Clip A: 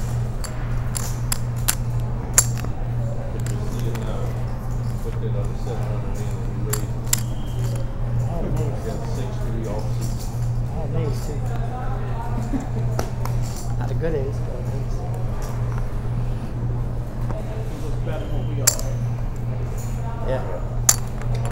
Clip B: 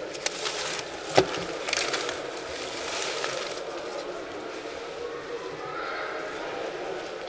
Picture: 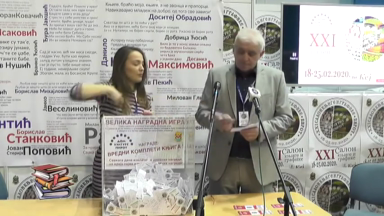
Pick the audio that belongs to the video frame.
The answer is B